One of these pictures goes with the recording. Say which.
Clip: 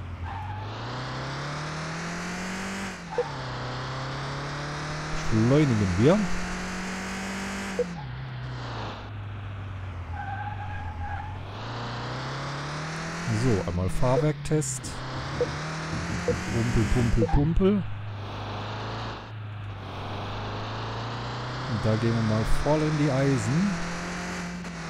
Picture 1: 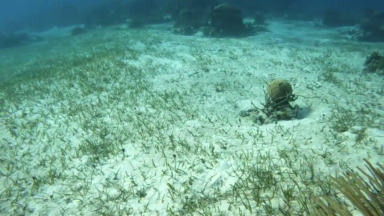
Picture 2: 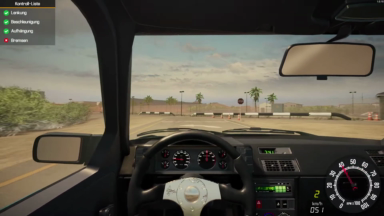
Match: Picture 2